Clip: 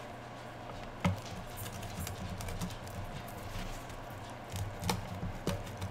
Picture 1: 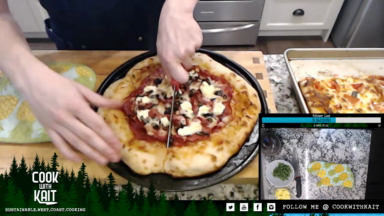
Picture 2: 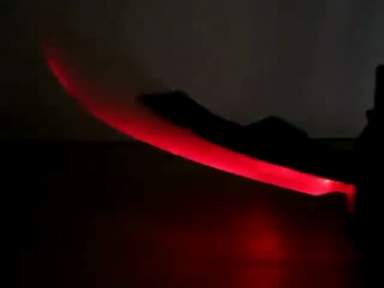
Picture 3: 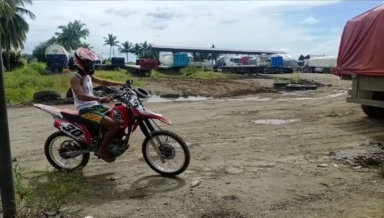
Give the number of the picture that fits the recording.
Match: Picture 1